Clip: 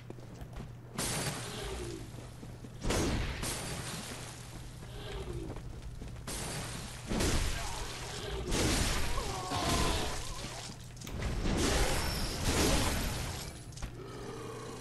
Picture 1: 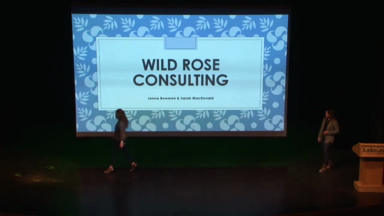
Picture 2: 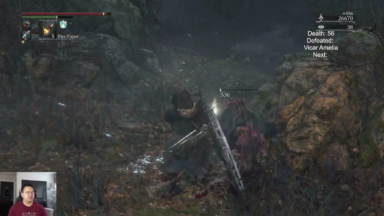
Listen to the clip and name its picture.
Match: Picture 2